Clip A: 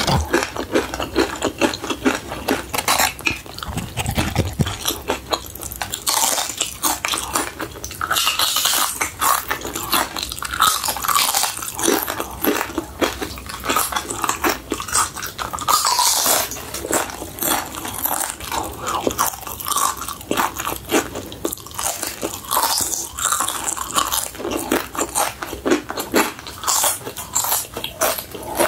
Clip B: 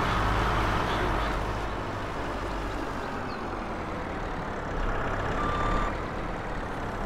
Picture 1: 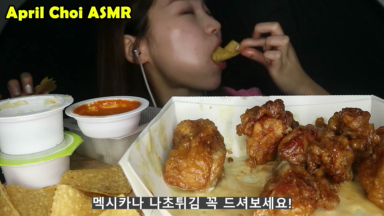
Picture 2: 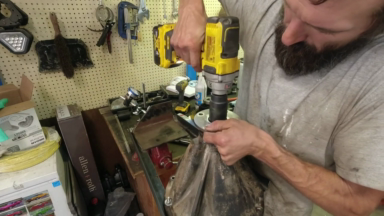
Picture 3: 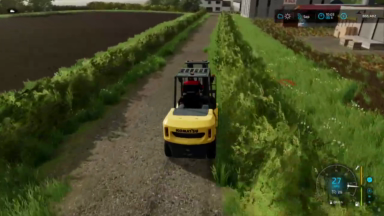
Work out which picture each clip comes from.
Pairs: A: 1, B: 3